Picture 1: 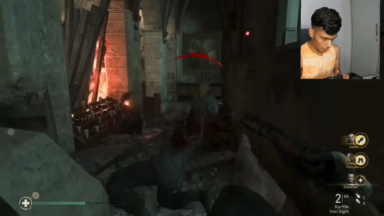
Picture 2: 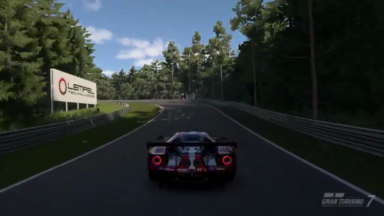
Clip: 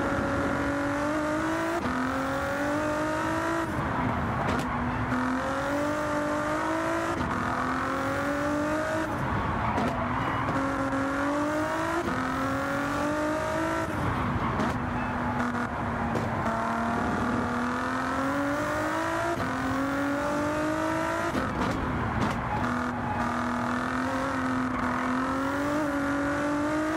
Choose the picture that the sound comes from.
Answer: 2